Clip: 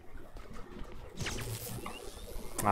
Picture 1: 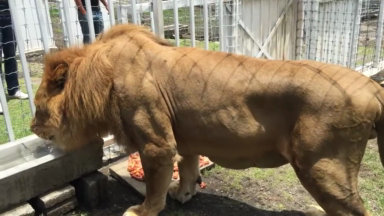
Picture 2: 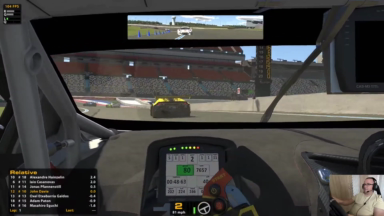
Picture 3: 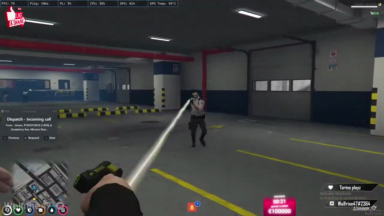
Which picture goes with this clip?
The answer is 3